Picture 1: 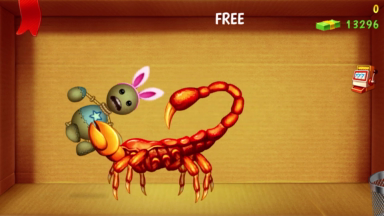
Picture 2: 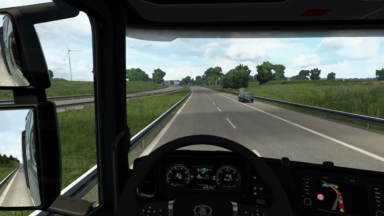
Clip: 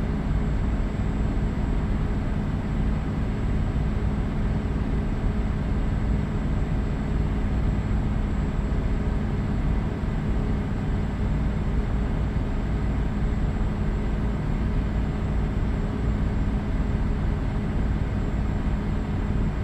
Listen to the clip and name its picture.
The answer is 2